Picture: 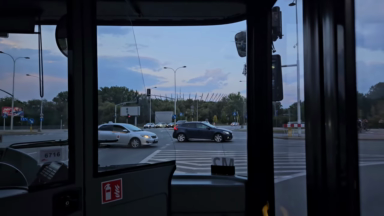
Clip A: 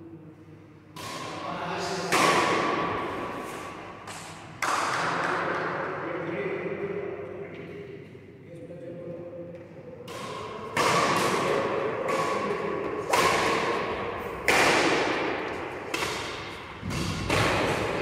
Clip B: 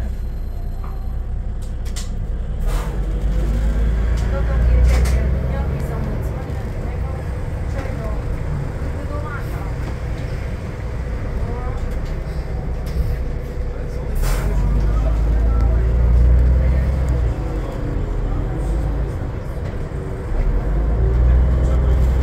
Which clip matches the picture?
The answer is B